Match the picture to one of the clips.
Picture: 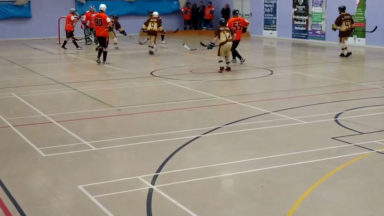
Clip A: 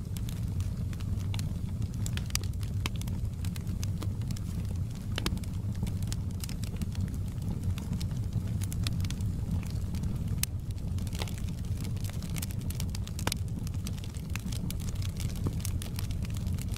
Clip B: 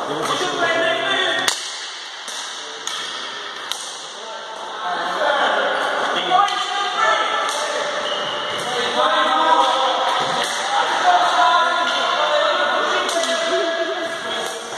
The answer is B